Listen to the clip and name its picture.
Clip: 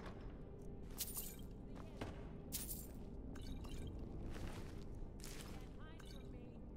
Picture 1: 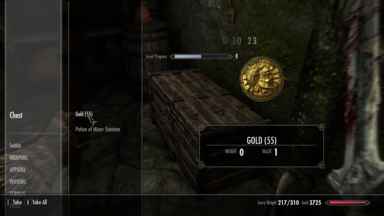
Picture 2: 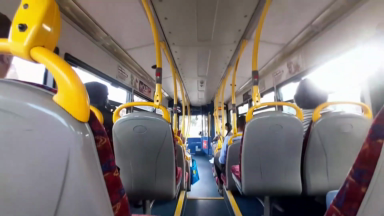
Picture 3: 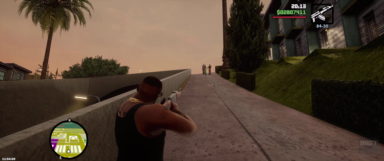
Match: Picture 1